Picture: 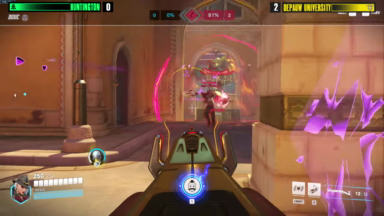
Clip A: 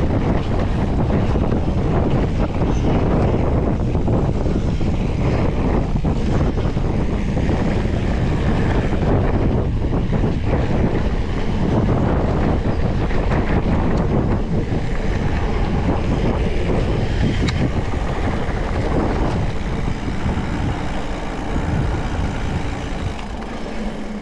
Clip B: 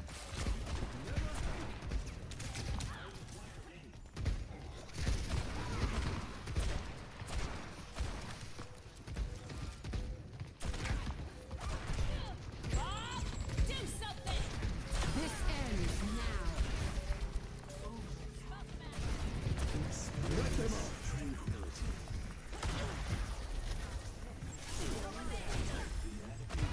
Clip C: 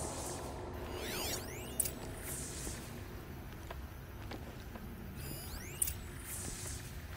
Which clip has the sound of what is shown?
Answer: B